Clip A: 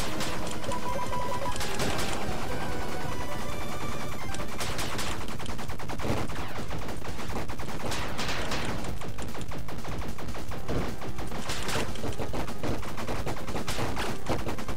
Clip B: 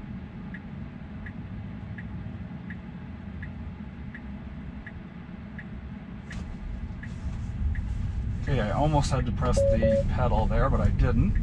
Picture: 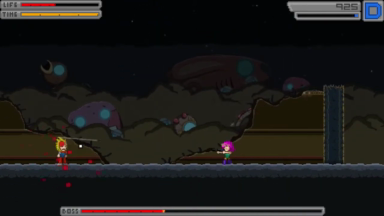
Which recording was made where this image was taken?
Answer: A